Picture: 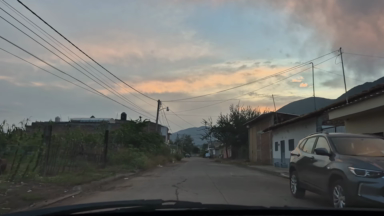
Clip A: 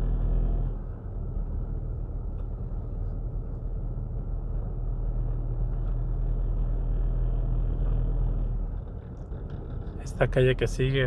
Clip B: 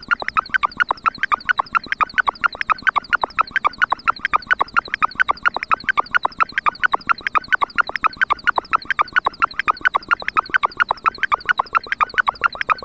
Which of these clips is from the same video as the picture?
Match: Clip A